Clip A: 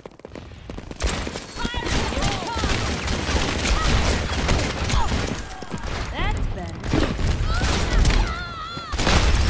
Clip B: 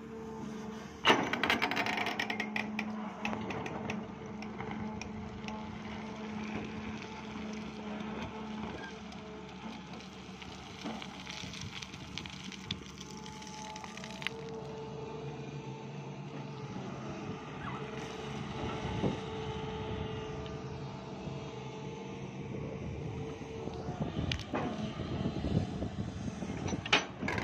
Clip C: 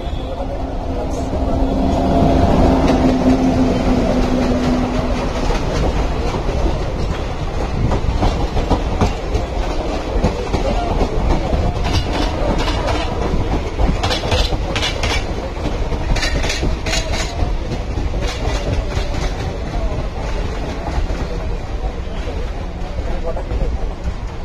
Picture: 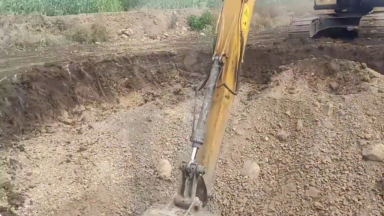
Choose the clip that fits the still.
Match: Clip B